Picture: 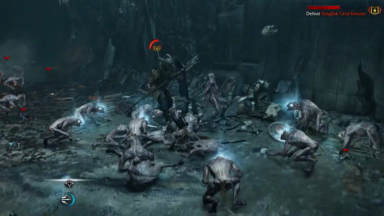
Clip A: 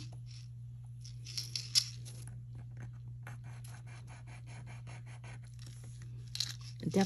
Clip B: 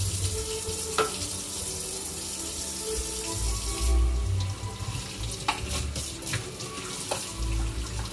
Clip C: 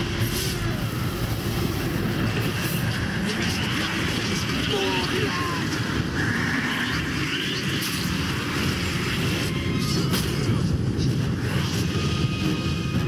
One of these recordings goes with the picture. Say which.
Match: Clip C